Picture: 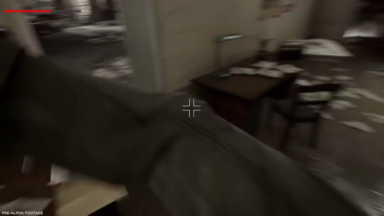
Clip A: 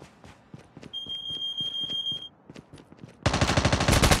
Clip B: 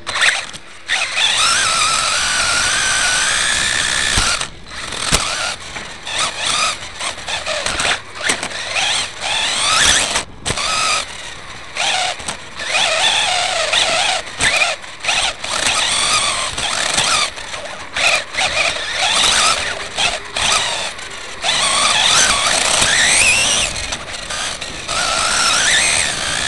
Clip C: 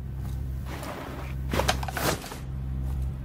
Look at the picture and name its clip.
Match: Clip C